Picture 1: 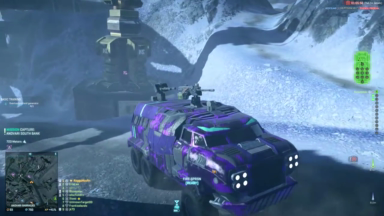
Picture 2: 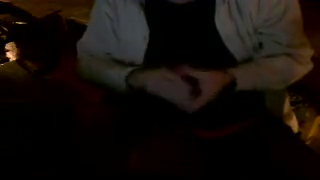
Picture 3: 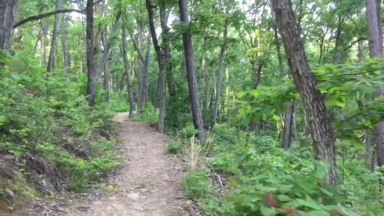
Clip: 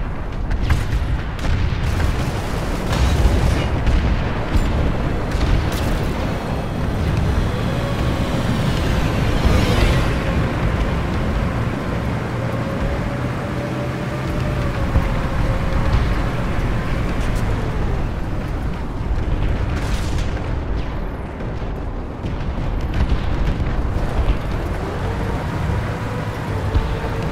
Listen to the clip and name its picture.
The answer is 1